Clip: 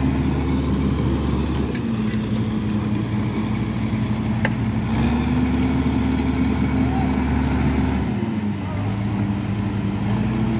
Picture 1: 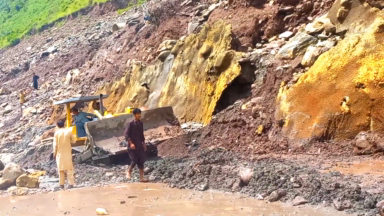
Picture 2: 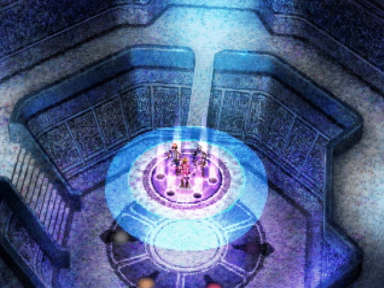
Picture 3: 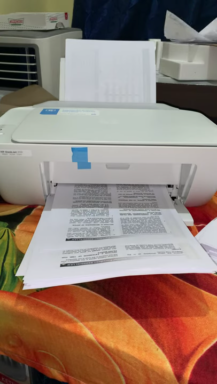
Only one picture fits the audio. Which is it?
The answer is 1